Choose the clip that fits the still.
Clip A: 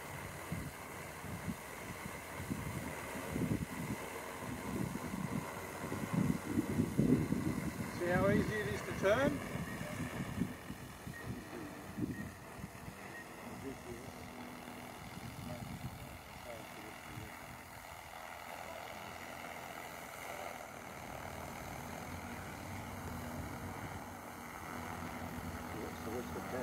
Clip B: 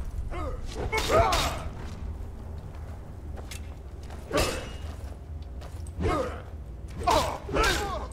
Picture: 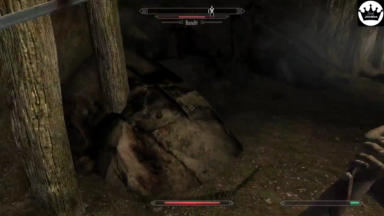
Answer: B